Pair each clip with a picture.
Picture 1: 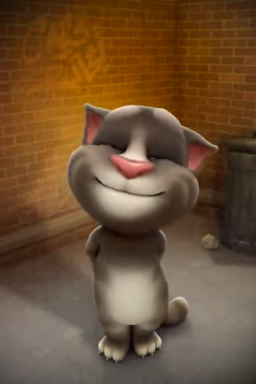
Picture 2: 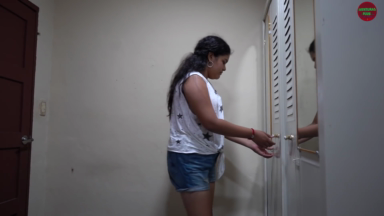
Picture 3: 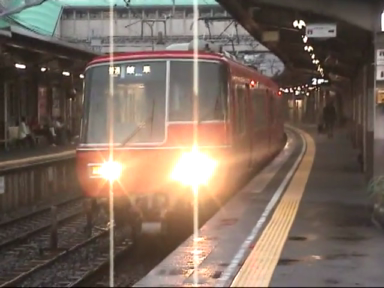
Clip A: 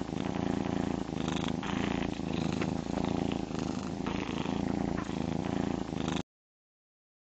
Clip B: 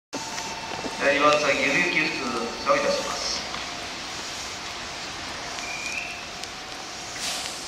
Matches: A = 1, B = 3